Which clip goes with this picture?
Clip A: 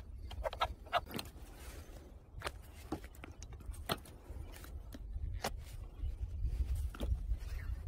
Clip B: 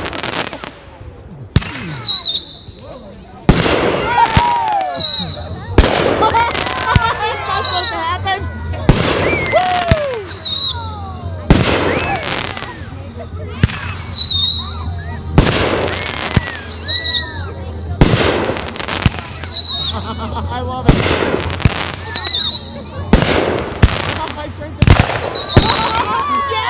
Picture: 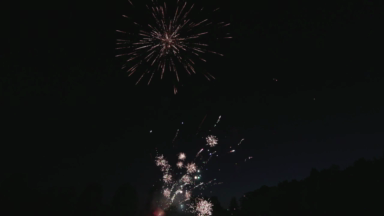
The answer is B